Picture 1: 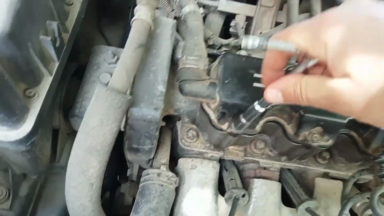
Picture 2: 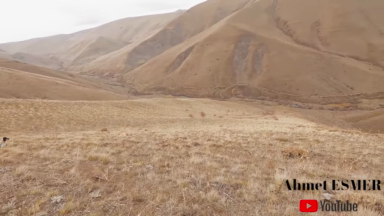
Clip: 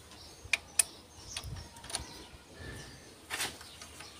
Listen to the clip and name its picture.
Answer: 1